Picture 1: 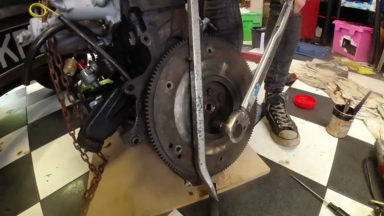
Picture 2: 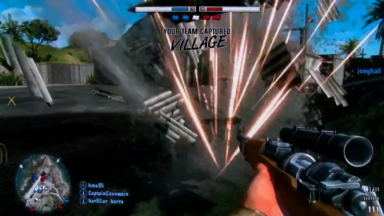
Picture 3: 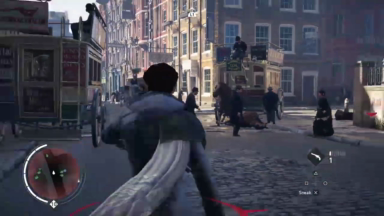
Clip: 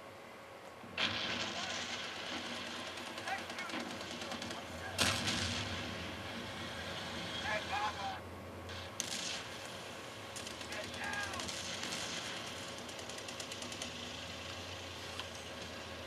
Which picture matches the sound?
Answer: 2